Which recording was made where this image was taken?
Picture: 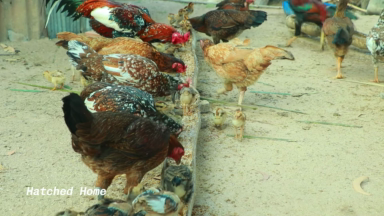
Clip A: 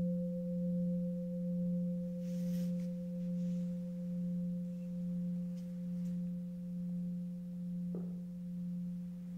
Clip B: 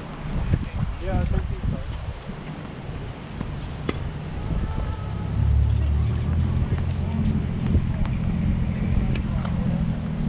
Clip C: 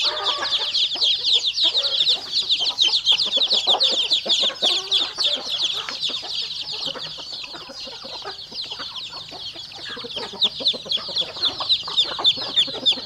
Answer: C